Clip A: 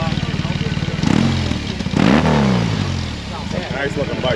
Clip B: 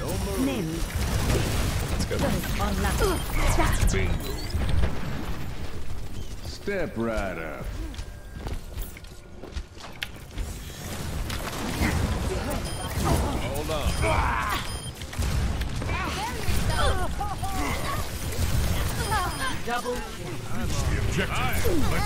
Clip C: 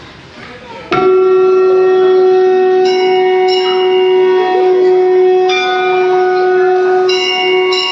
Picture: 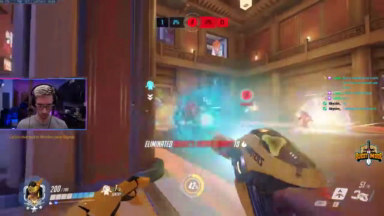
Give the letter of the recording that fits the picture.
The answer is B